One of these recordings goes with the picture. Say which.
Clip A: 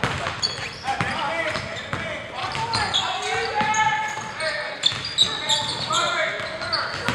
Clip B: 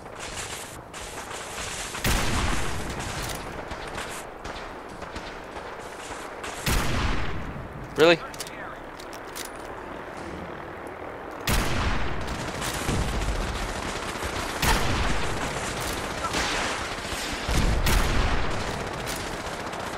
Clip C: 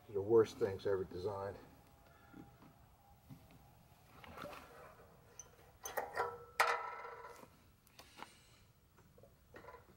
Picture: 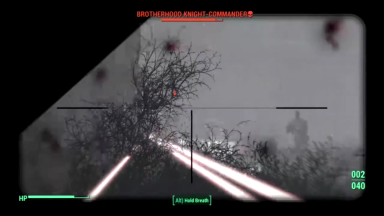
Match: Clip B